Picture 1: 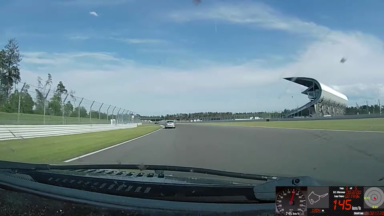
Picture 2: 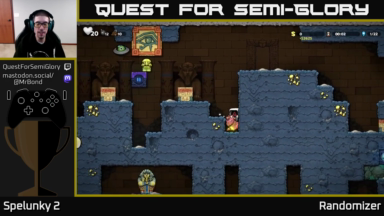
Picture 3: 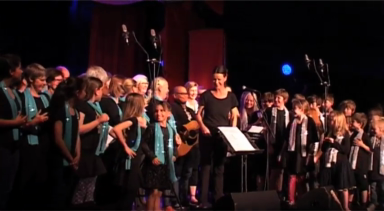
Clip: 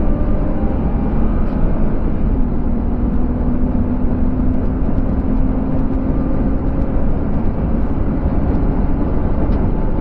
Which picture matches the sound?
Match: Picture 1